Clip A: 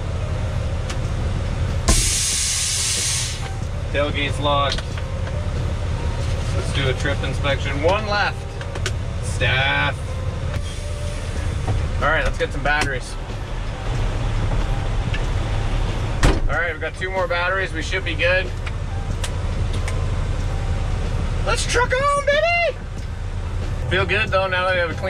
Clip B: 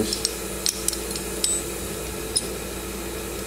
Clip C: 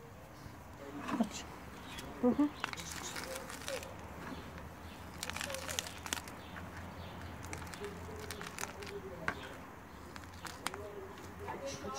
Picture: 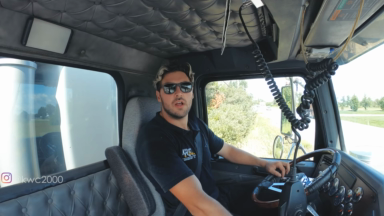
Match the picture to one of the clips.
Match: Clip A